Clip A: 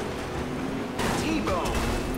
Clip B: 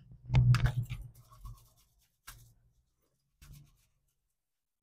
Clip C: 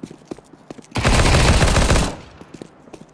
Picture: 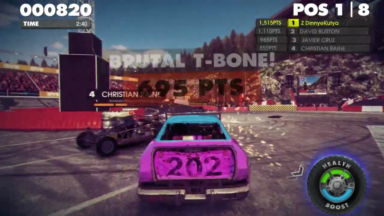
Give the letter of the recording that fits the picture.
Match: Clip A